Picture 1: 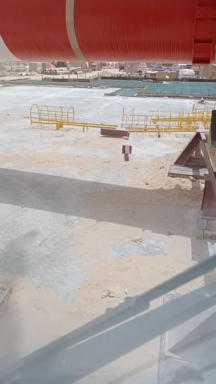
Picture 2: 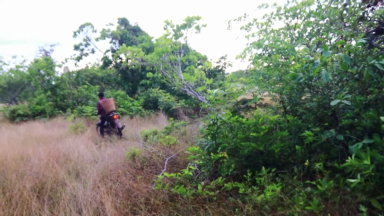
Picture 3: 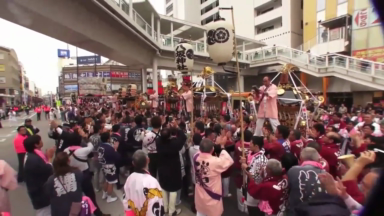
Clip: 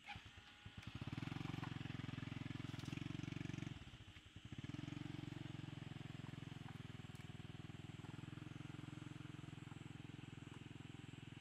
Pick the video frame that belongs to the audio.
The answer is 2